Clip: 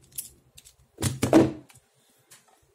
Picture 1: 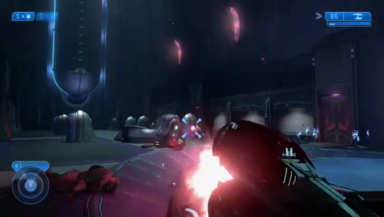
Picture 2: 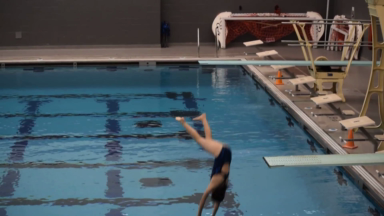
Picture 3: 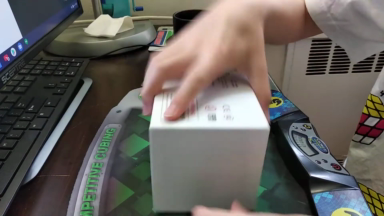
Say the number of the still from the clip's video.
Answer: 3